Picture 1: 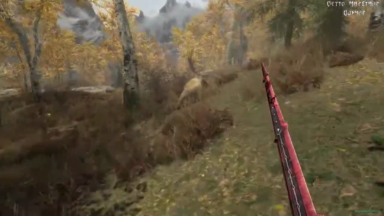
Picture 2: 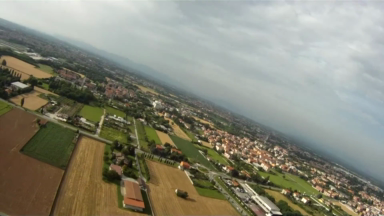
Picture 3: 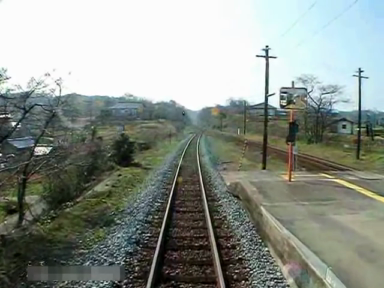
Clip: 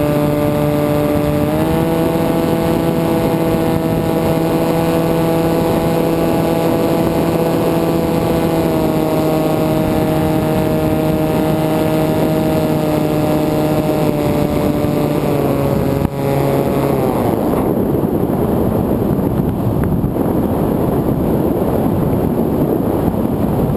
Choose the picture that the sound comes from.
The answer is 2